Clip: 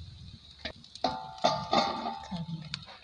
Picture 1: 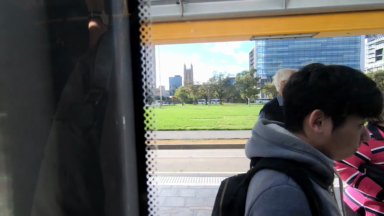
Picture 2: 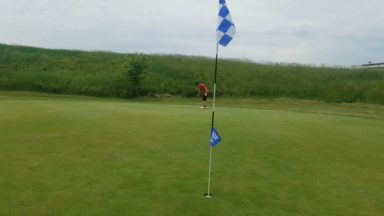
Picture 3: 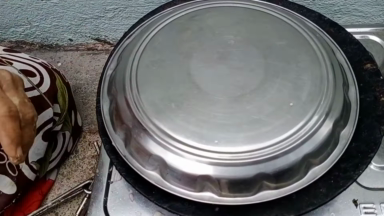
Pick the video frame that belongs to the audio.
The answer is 3